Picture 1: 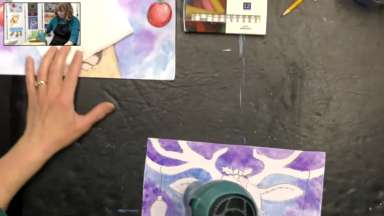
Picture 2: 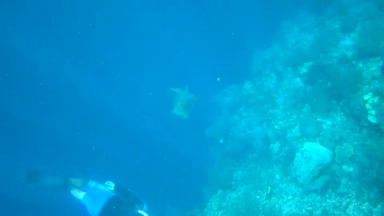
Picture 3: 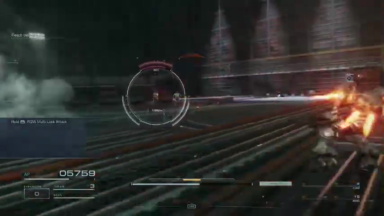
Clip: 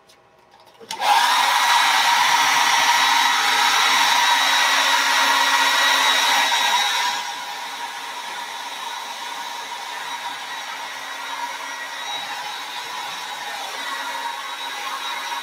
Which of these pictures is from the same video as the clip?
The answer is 1